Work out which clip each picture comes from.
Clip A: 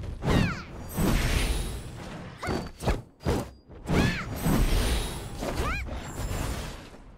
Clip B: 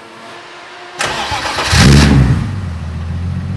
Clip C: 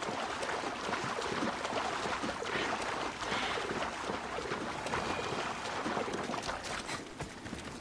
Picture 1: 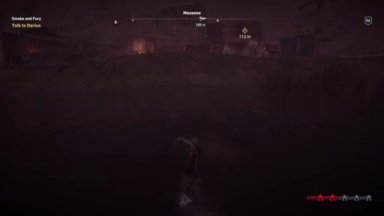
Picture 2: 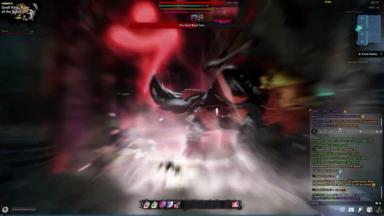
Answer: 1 C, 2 A